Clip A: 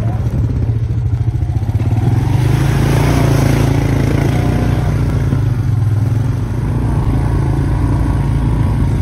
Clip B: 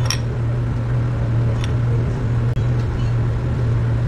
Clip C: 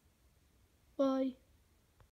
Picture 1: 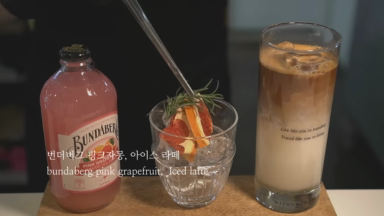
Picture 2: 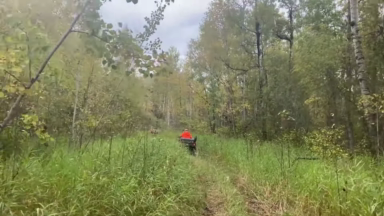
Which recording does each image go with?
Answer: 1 B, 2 A